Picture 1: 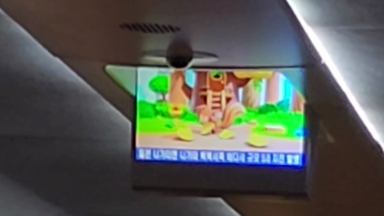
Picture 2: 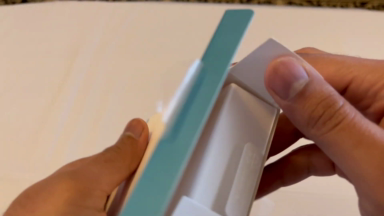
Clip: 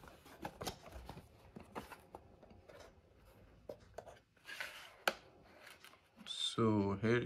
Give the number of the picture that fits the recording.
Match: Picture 2